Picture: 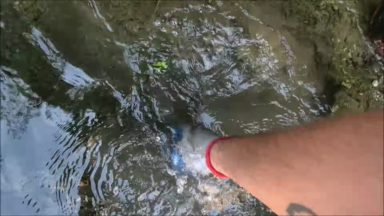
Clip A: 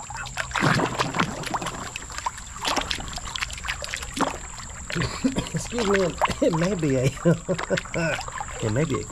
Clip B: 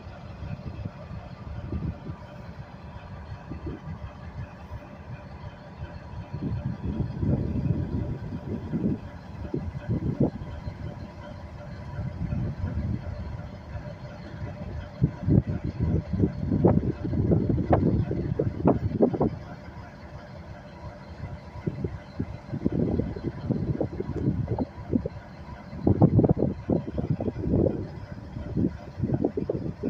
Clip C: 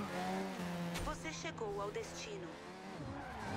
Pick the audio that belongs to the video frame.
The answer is A